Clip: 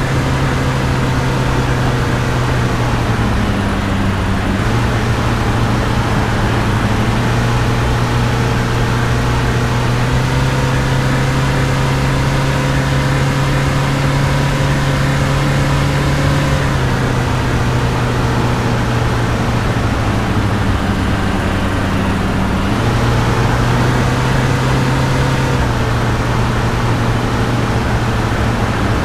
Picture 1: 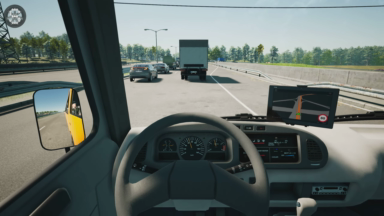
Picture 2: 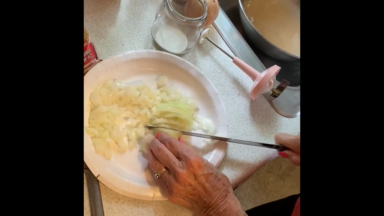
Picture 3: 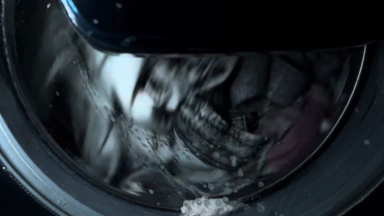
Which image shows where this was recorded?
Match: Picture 1